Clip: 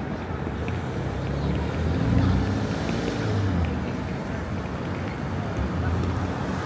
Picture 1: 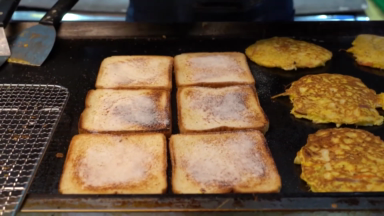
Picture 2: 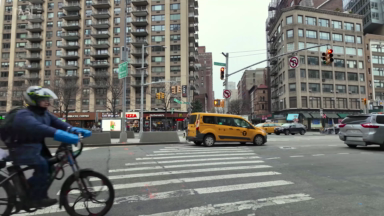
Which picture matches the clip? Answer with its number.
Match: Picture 2